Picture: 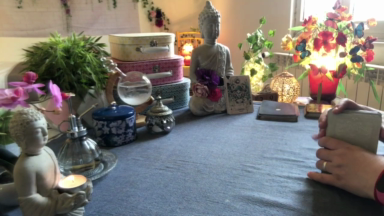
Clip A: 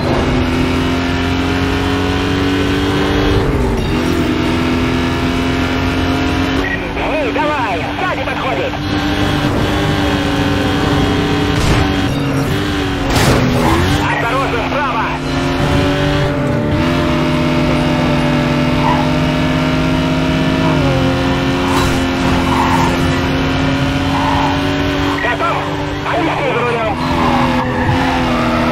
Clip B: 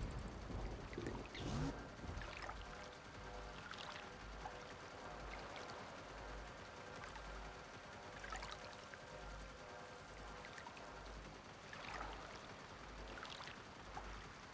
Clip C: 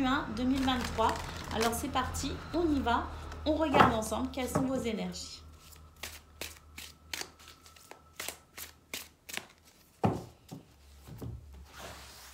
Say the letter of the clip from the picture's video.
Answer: C